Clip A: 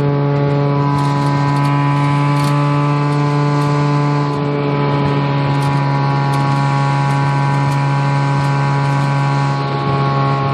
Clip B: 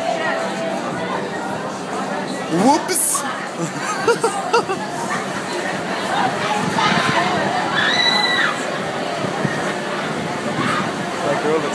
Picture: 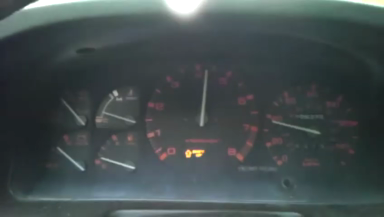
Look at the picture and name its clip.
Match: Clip A